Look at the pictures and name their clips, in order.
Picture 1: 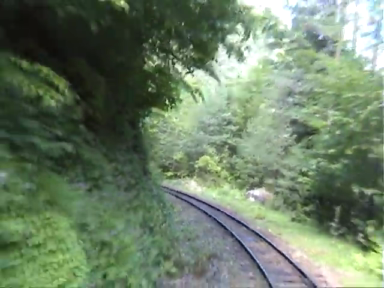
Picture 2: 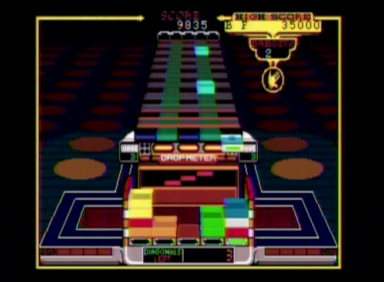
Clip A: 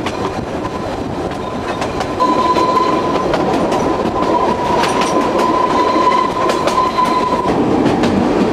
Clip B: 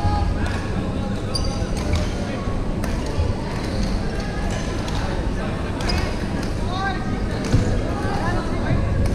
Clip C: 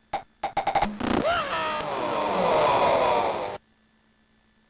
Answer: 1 A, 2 C